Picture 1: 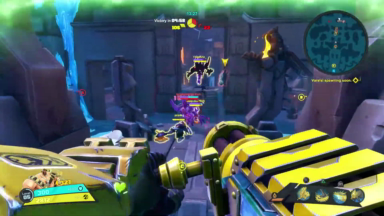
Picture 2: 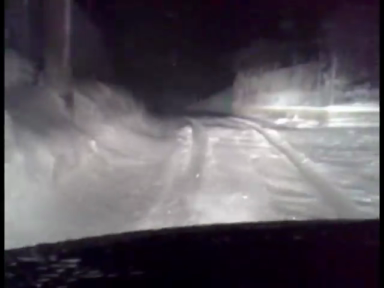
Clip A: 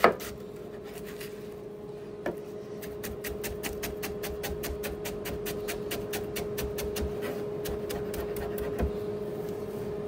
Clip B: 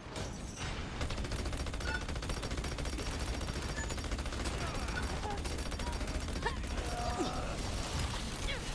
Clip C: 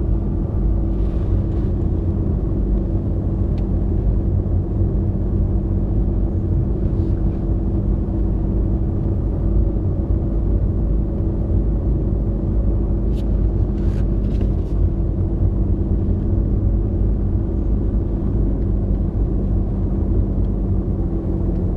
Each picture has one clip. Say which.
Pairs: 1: B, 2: C